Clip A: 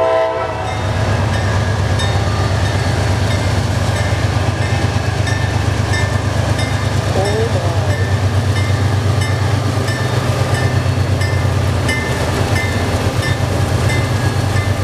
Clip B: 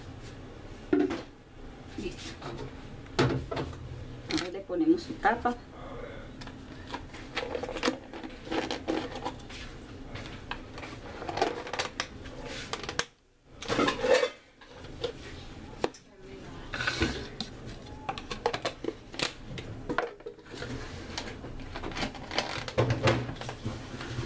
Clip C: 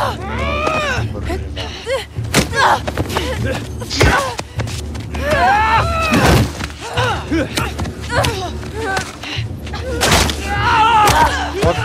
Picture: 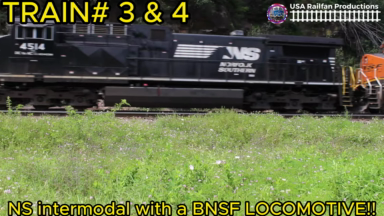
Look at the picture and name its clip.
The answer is A